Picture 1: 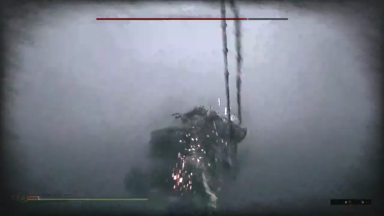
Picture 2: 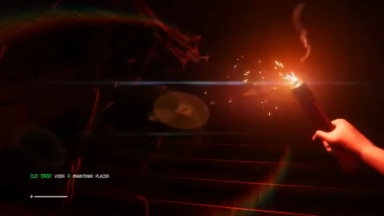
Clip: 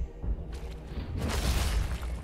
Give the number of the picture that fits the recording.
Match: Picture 1